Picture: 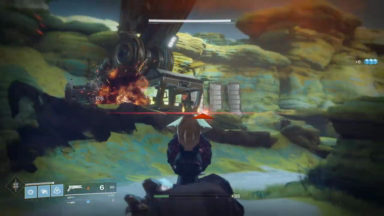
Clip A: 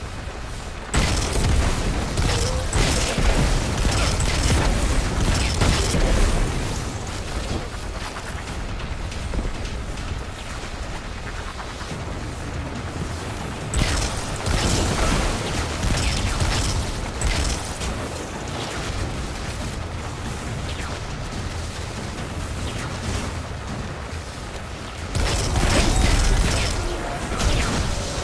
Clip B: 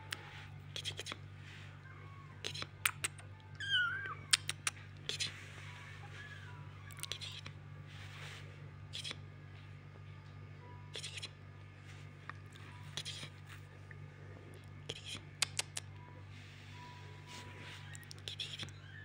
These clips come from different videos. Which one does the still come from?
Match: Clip A